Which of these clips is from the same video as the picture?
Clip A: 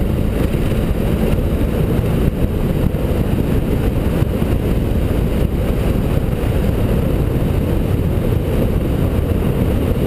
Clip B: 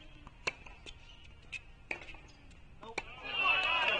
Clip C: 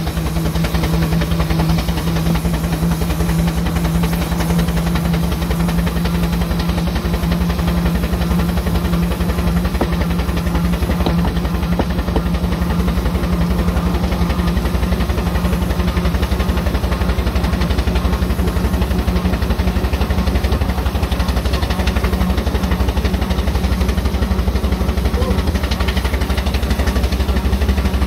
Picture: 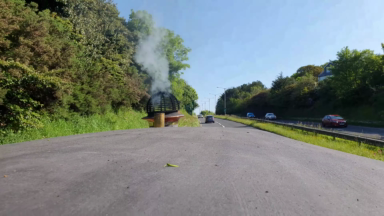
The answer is C